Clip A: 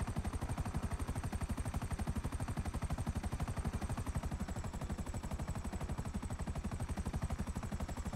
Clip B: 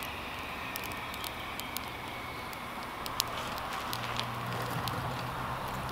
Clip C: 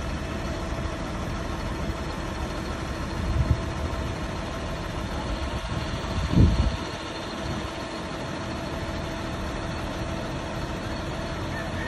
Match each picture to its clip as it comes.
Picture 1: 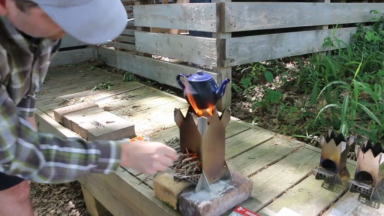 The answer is B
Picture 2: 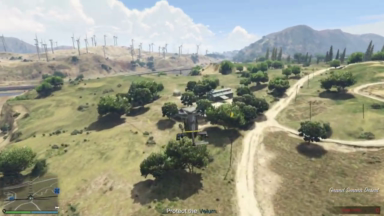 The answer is A